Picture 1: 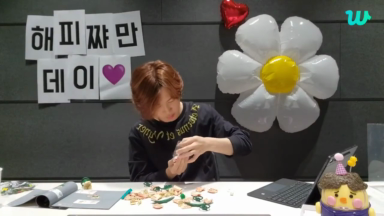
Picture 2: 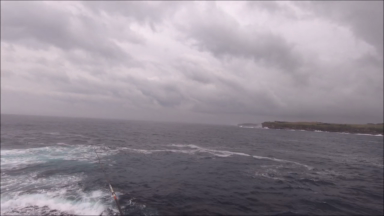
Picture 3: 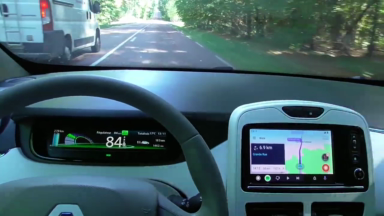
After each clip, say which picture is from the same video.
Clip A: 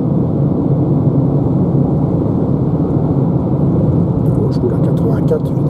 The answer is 3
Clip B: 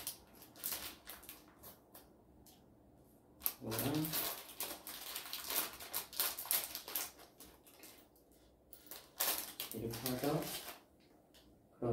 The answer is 1